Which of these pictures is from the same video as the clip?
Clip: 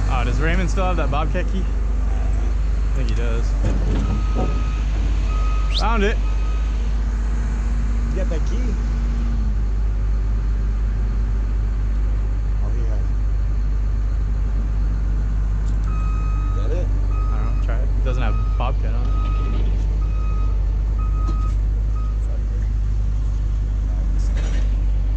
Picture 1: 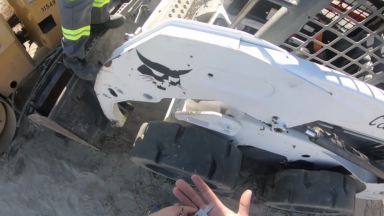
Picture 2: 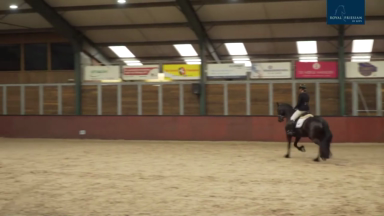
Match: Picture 1